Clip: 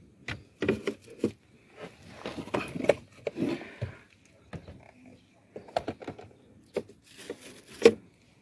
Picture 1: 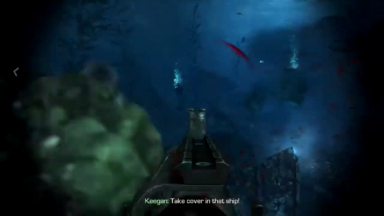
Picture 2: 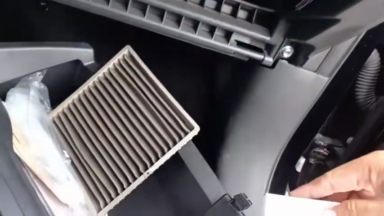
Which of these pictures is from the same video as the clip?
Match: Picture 2